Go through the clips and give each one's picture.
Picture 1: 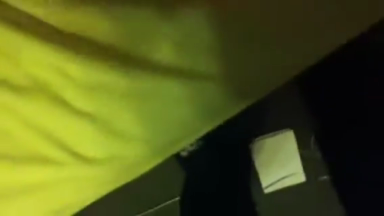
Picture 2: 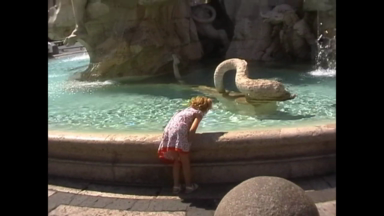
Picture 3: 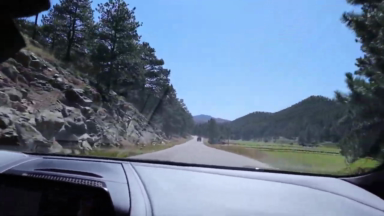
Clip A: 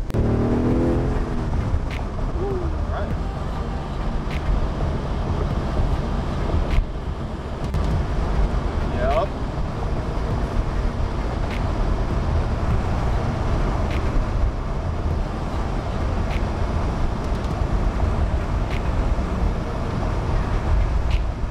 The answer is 3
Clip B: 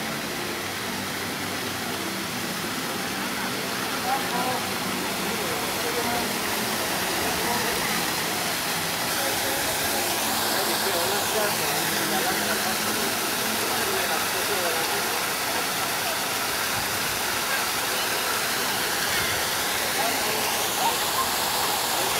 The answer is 2